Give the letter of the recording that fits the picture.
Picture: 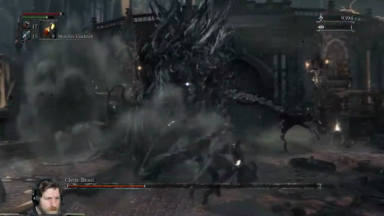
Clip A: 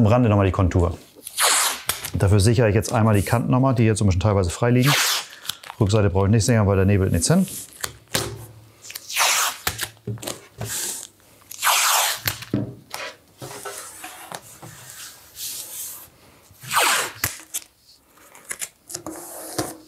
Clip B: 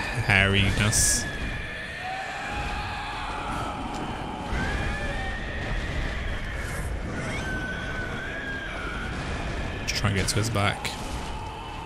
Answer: B